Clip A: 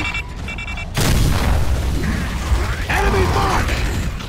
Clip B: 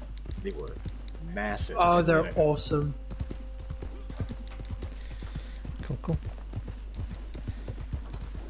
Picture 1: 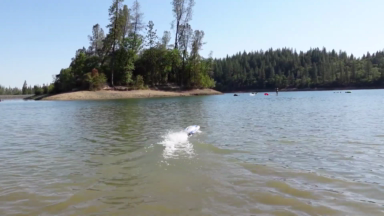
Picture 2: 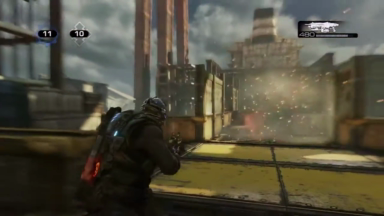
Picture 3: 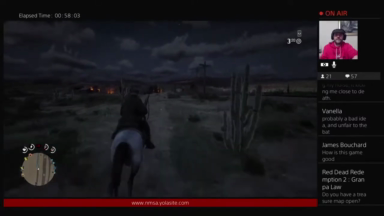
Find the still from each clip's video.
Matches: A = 2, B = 3